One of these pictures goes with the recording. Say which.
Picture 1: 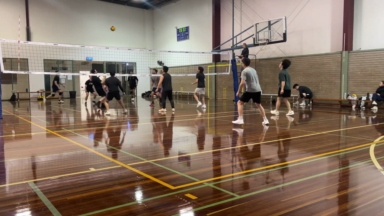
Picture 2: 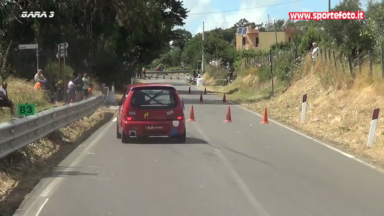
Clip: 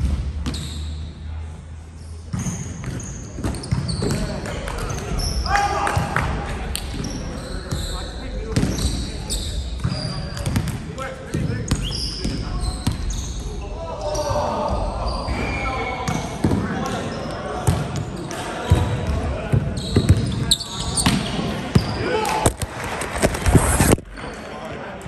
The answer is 1